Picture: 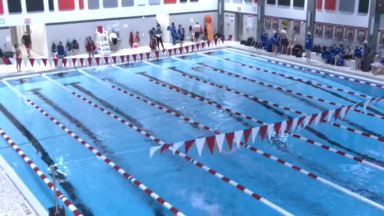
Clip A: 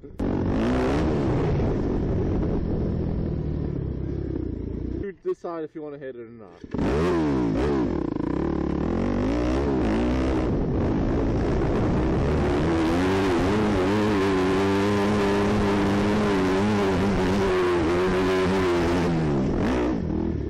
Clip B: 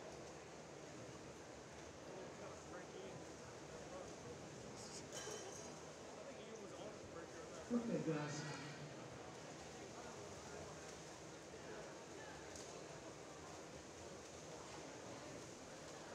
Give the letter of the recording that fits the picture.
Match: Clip B